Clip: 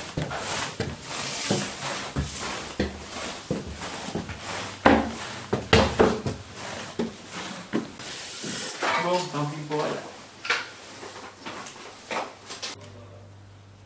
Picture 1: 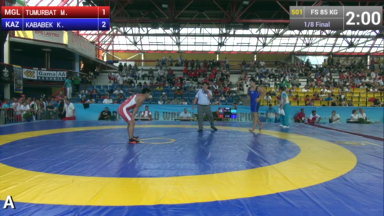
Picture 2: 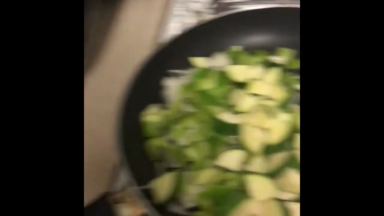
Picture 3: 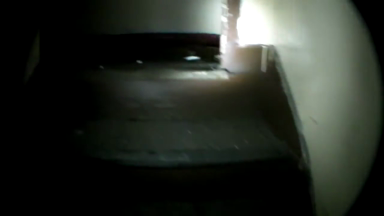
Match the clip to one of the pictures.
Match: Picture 3